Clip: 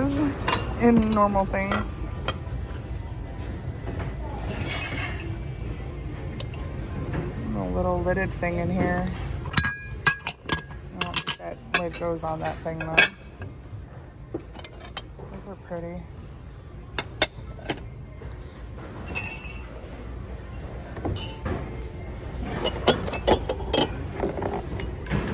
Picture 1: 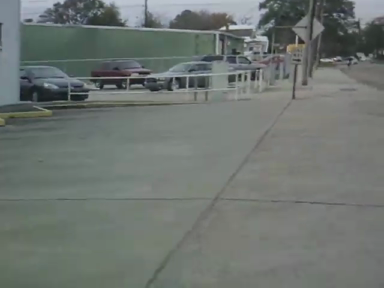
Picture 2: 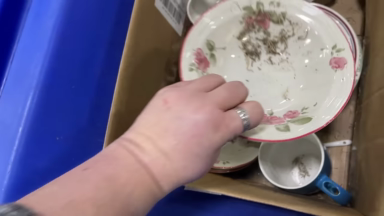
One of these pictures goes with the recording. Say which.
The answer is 2